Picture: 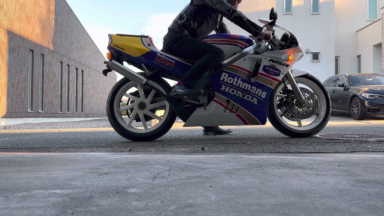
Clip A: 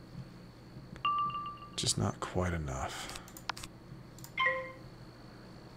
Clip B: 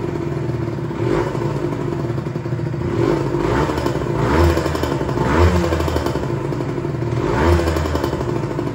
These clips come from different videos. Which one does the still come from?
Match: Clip B